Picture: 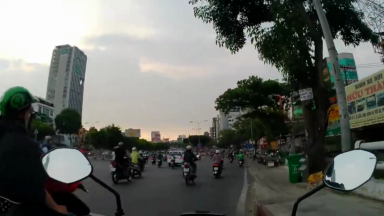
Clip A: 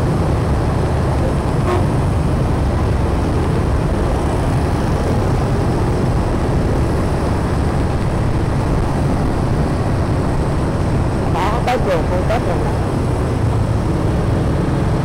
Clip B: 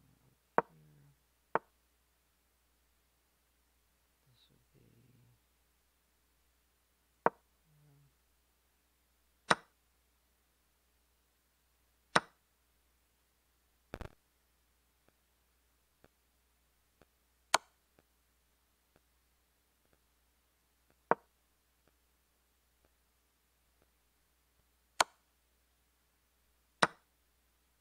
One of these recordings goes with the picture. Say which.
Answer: A